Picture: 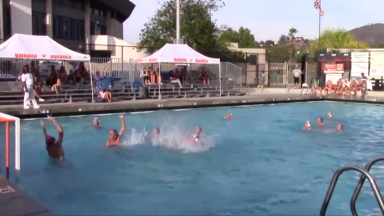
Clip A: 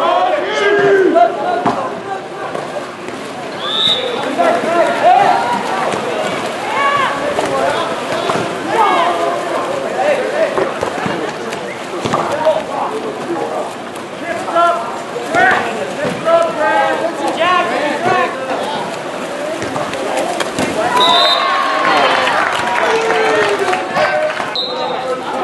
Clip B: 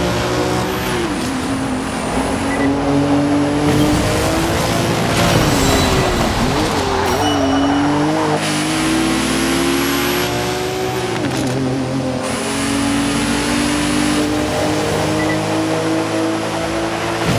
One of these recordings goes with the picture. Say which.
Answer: A